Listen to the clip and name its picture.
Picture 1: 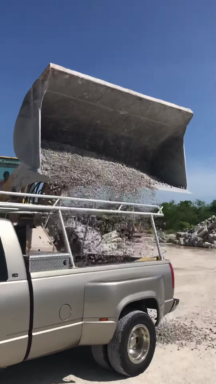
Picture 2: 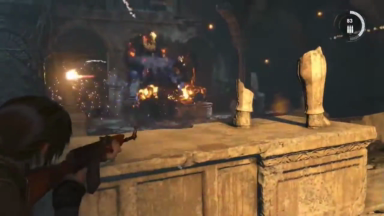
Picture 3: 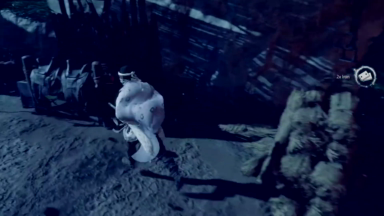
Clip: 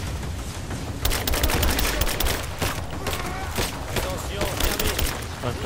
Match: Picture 2